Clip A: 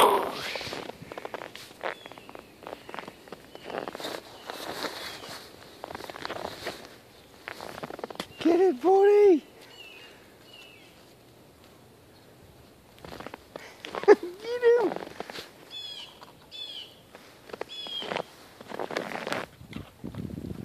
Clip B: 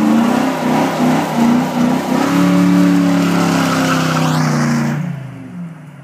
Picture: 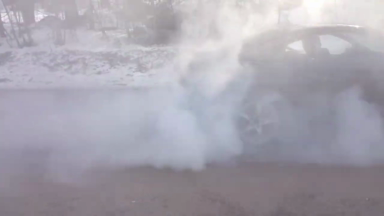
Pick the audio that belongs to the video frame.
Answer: B